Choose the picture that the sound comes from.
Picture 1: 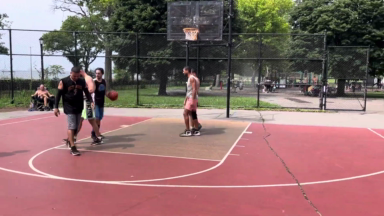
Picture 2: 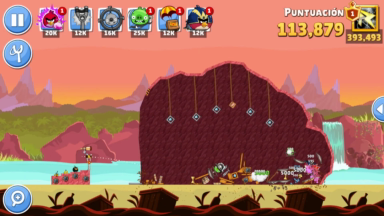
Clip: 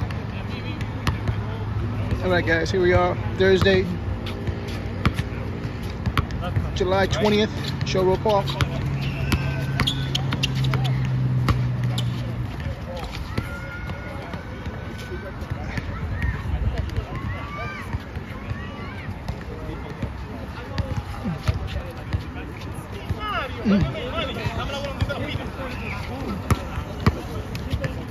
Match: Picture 1